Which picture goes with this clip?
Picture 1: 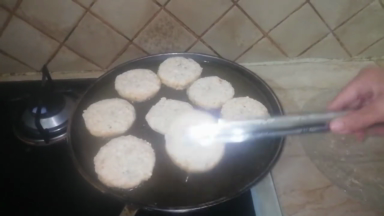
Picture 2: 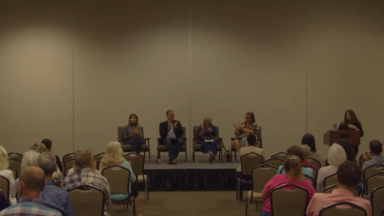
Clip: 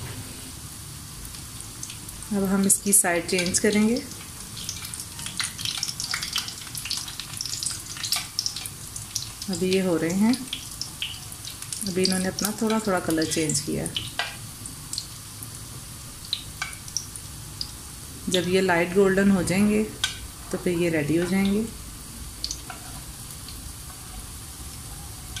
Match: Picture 1